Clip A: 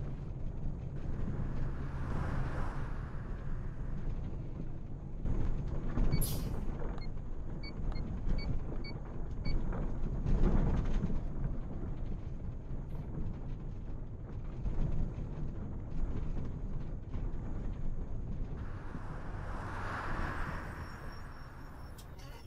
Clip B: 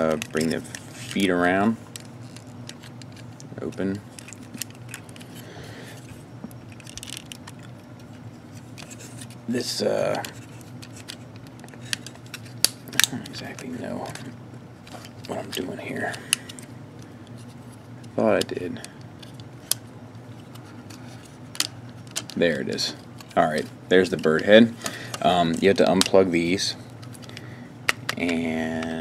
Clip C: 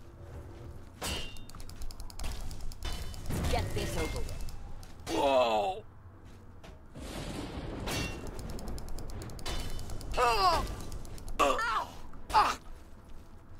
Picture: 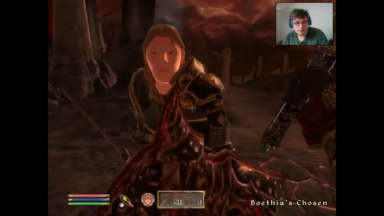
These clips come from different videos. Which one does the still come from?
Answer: C